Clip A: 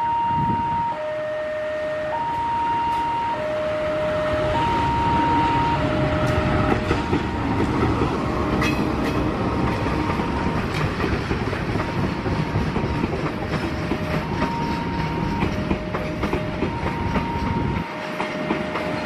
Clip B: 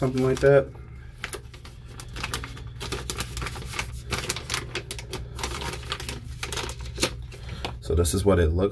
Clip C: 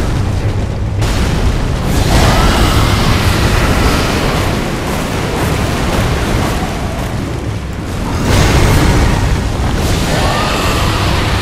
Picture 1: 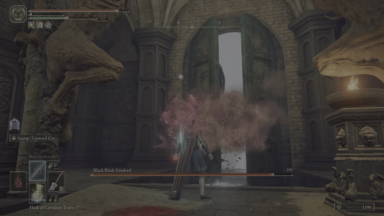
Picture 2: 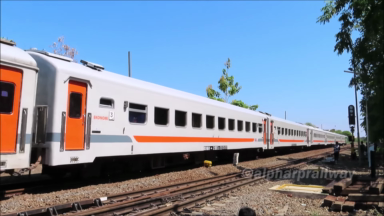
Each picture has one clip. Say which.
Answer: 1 C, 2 A